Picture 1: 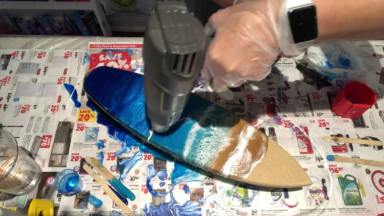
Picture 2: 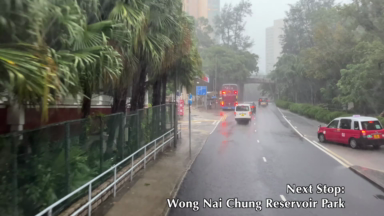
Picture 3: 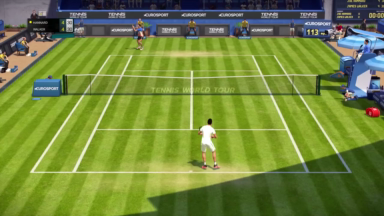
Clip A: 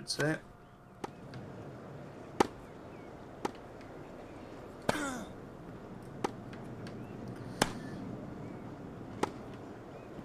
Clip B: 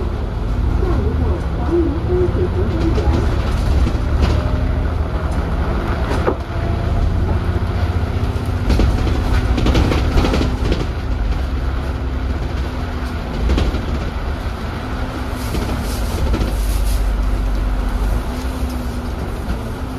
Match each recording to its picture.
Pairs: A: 3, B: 2